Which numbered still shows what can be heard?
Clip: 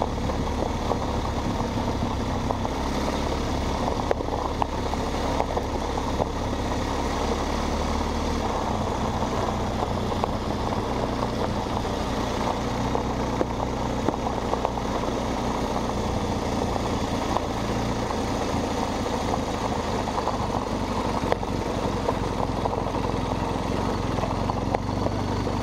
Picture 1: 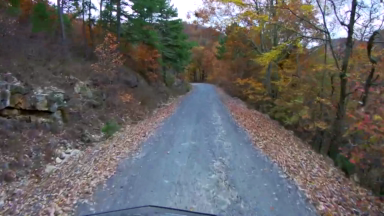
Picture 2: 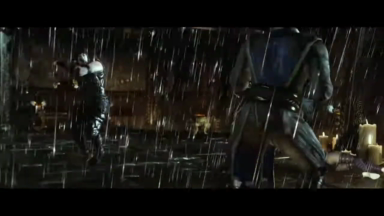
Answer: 1